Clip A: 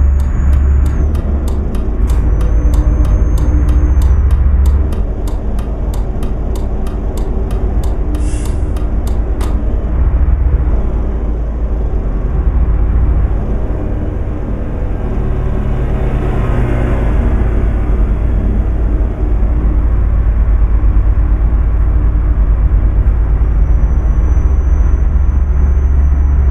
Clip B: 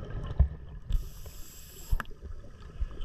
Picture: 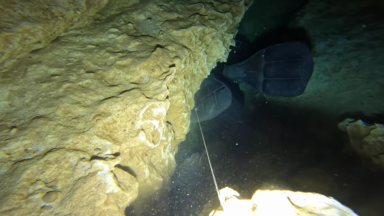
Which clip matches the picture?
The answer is B